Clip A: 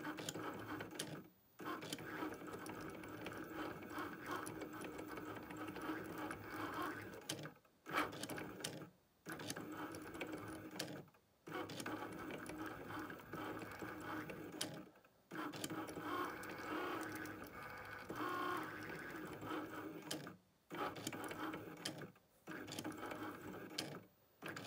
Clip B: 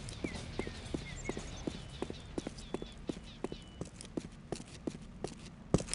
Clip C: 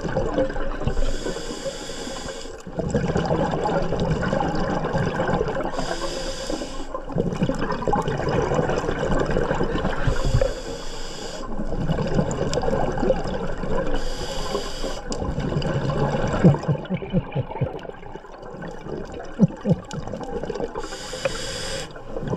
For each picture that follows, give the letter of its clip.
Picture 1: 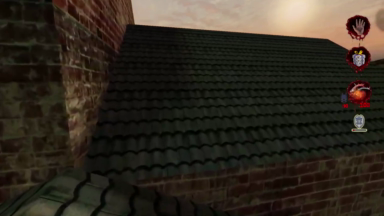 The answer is B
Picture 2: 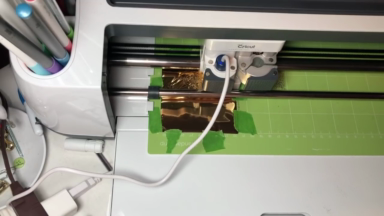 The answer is A